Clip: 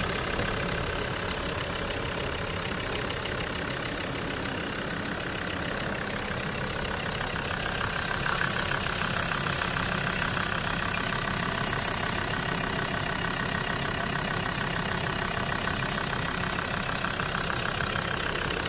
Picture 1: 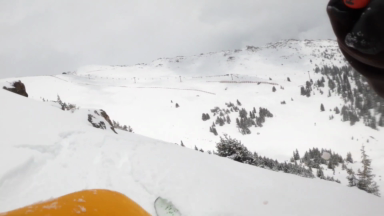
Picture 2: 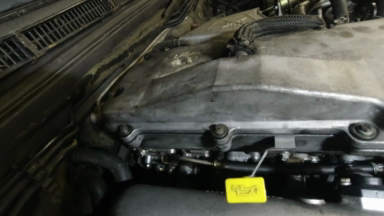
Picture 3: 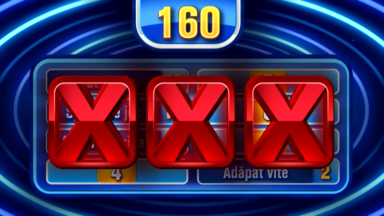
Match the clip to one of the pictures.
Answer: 2